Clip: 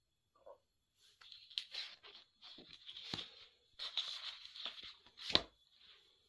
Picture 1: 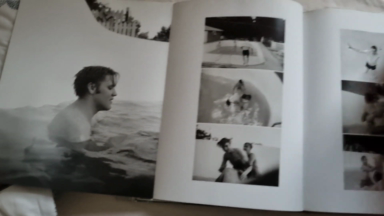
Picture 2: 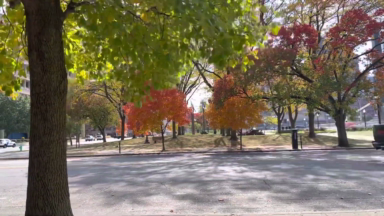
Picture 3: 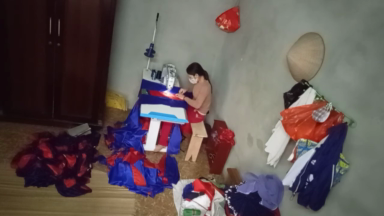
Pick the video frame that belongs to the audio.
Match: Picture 1